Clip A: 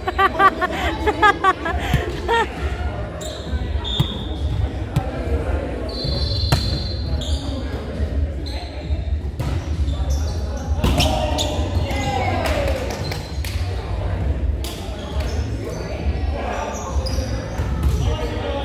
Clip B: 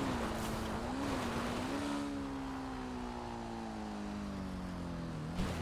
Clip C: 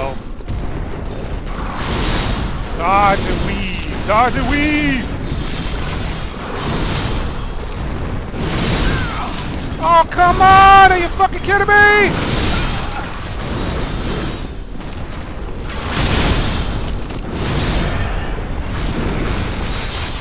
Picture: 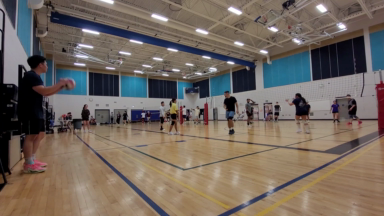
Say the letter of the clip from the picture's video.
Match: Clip A